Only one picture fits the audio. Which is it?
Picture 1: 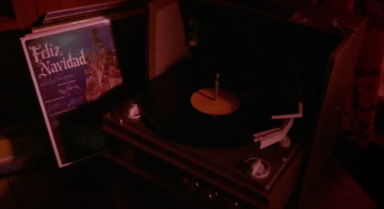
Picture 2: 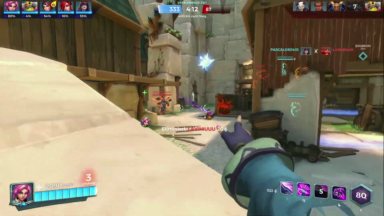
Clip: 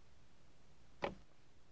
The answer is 1